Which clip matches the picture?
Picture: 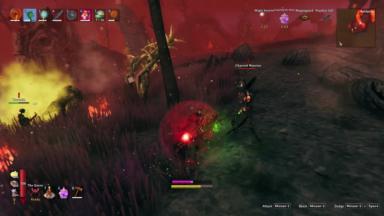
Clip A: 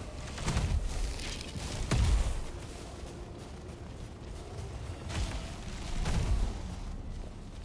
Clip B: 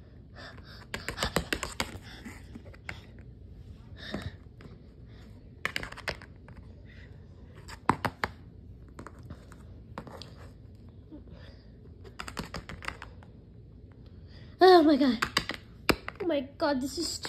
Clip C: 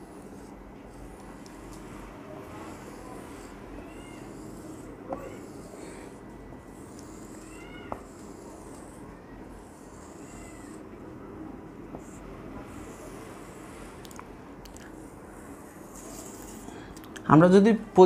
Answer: A